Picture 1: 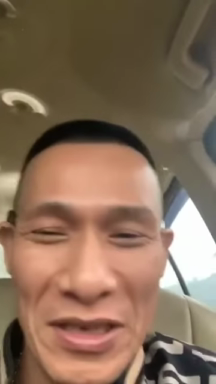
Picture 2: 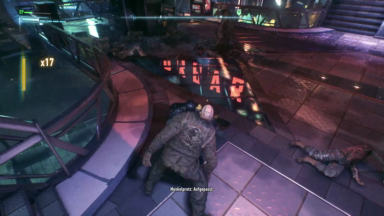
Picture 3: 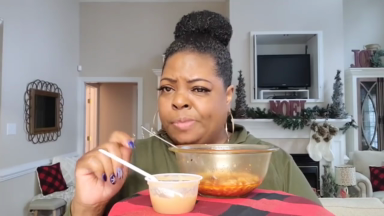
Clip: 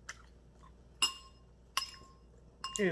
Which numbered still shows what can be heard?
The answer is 3